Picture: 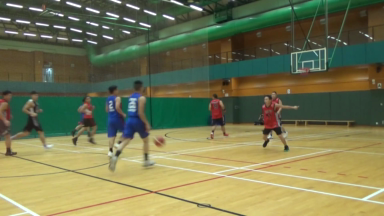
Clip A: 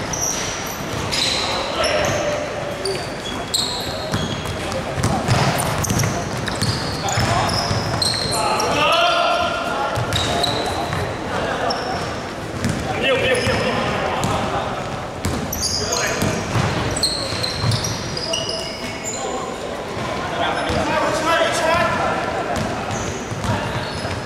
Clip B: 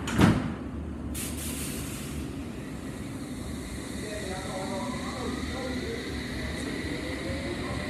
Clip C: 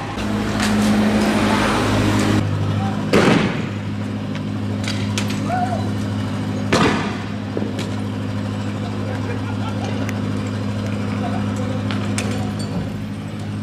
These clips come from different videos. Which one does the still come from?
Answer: A